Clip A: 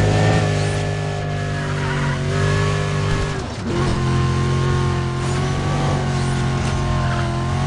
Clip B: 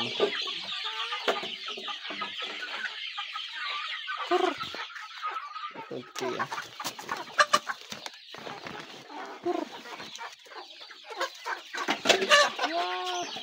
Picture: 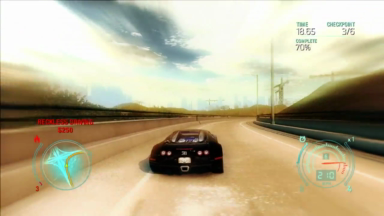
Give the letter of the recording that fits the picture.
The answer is A